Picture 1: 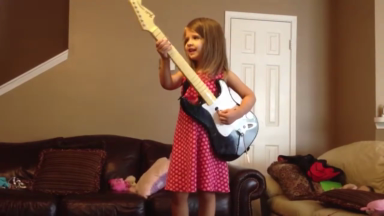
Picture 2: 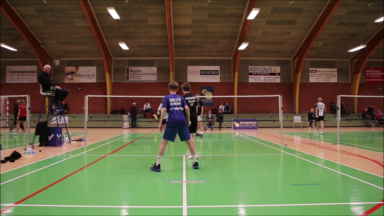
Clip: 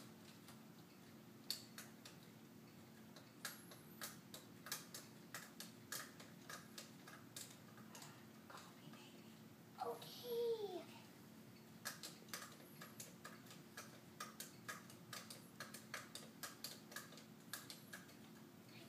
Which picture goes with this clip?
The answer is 1